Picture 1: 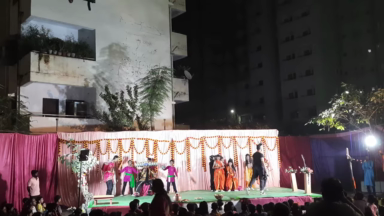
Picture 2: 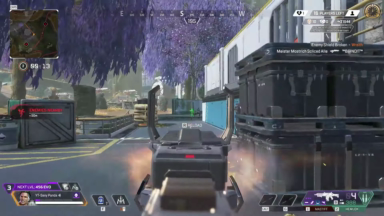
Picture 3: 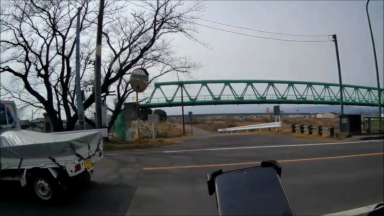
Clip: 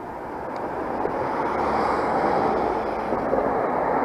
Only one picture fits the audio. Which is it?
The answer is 3